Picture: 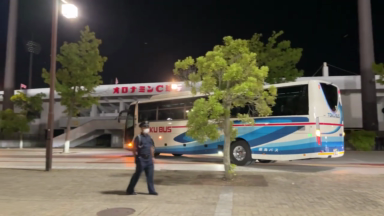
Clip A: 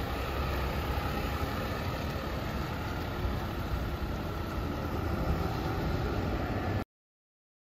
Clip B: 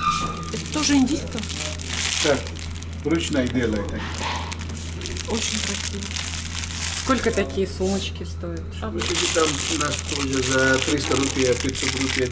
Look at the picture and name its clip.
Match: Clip A